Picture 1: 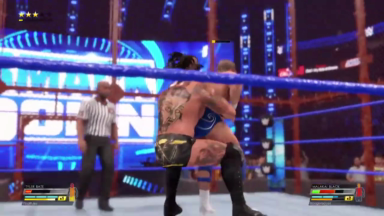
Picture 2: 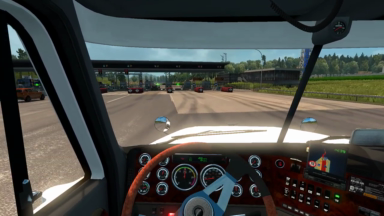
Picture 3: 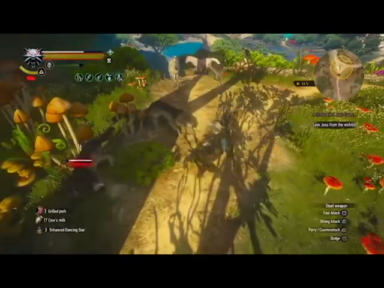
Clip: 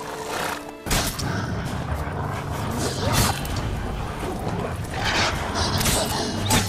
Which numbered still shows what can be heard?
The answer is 3